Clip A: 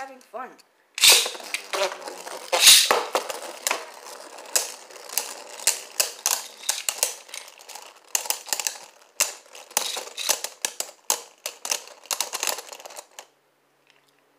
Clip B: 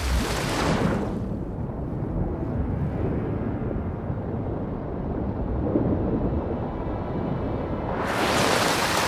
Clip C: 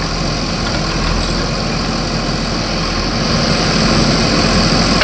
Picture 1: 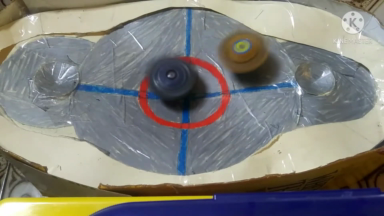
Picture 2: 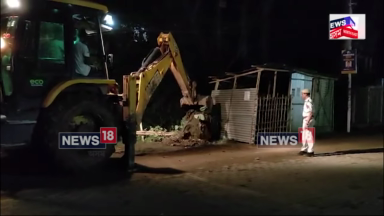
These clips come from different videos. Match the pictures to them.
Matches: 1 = A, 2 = C